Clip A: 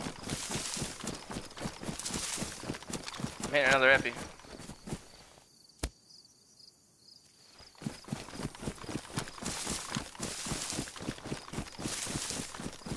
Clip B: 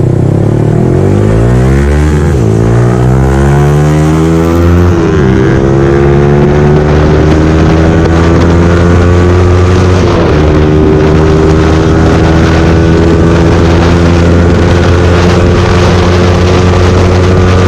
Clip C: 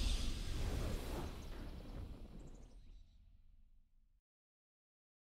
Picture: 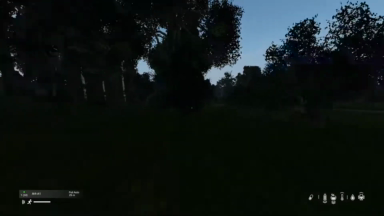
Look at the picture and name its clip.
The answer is A